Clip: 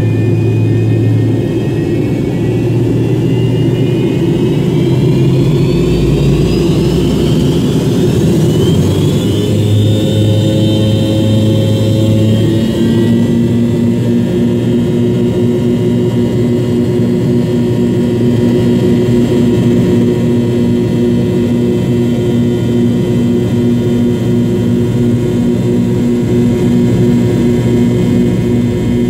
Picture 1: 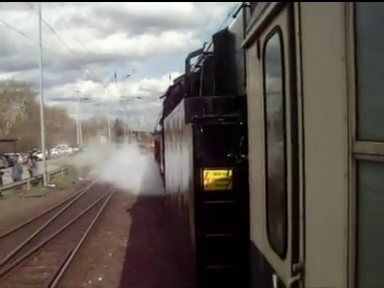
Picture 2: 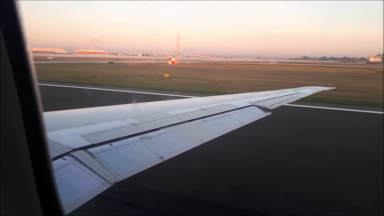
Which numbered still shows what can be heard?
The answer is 2